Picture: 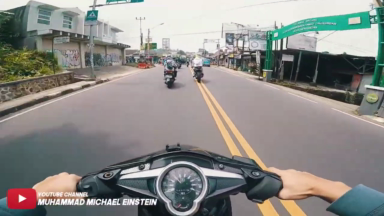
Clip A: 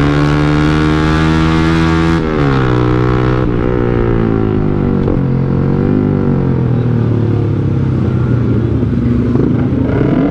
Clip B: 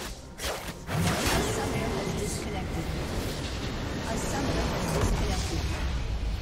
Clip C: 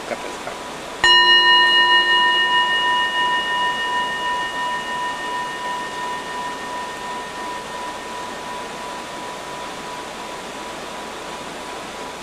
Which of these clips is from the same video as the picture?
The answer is A